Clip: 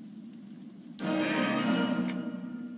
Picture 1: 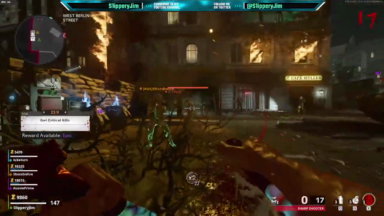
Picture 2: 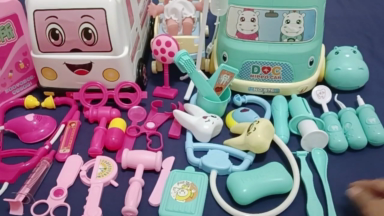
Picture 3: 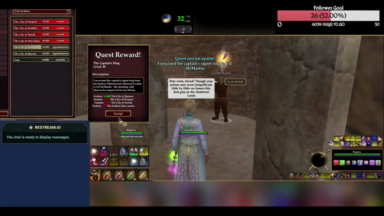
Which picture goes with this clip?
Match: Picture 3